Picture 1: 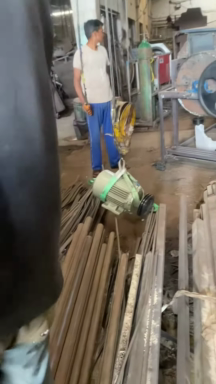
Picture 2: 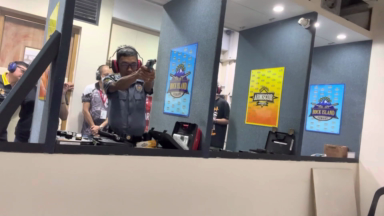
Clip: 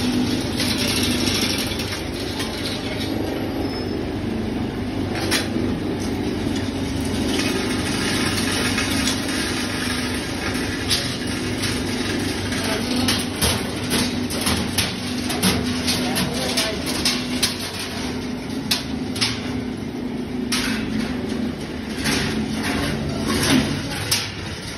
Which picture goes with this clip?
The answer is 1